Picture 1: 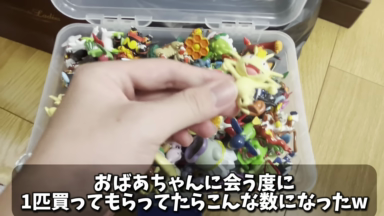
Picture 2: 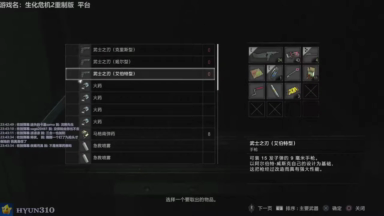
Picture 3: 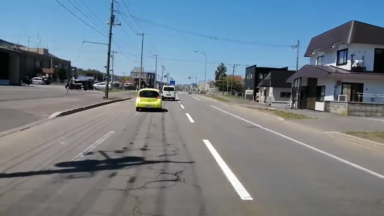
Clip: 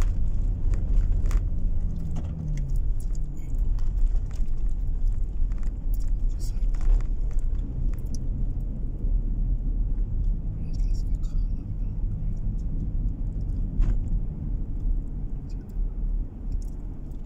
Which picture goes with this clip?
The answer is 3